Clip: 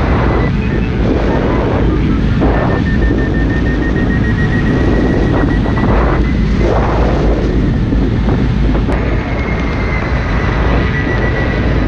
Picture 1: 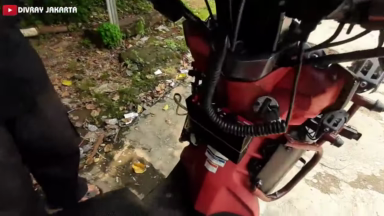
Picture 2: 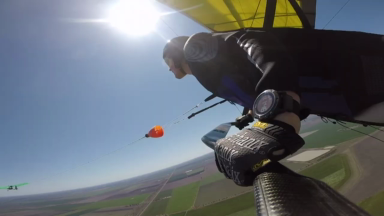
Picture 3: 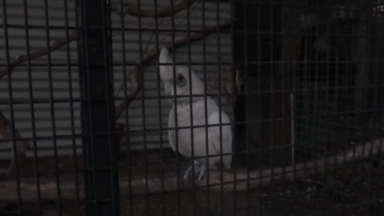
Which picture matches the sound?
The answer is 2